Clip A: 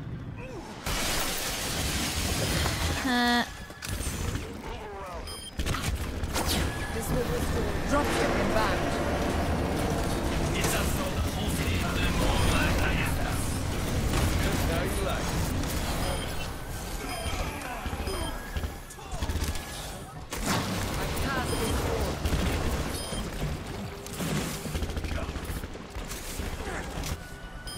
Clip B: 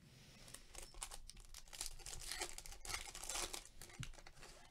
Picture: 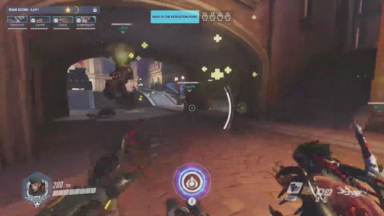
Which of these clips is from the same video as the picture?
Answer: A